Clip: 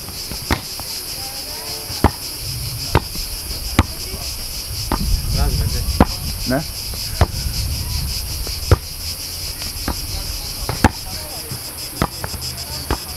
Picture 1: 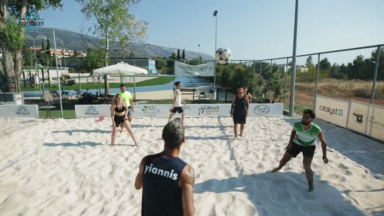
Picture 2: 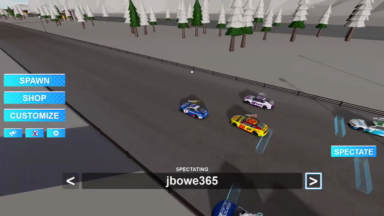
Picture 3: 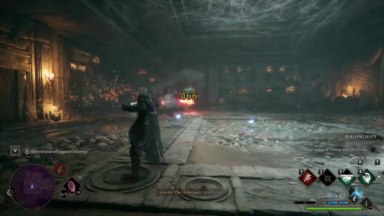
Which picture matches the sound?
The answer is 1